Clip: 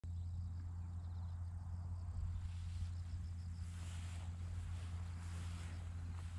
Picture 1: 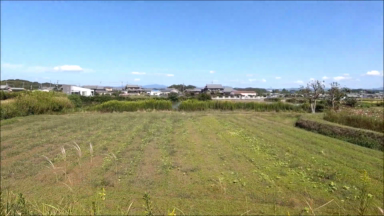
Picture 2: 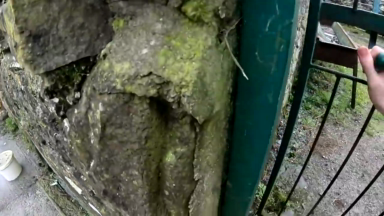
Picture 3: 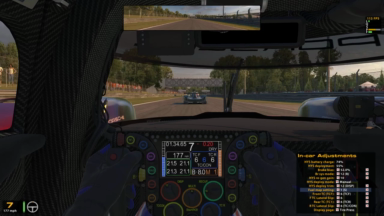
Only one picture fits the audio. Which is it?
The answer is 1